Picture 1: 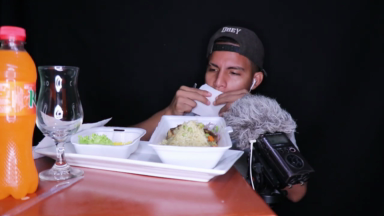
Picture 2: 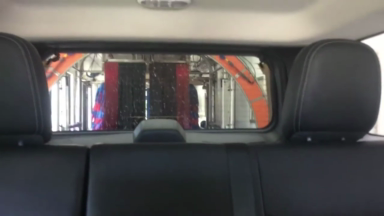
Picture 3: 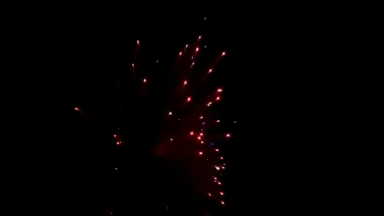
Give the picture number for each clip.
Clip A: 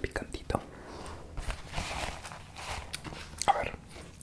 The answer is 1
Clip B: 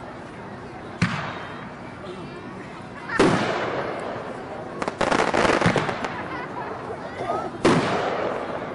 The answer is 3